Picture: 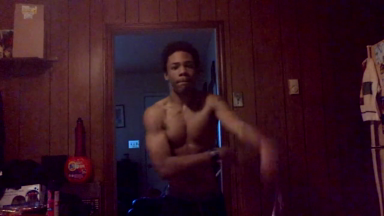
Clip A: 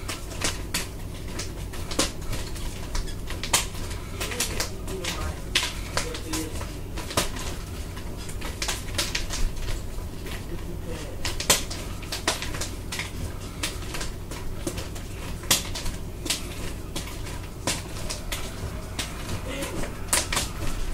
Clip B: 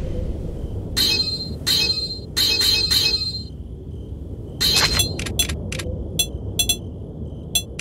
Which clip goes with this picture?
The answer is A